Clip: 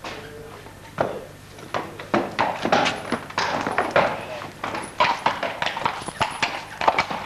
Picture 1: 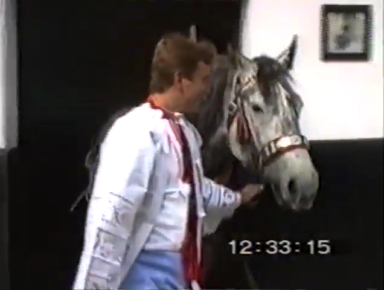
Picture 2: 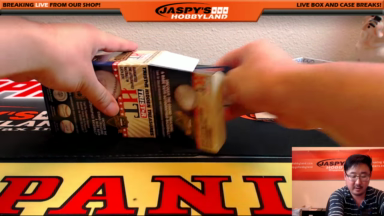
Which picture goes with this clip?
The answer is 1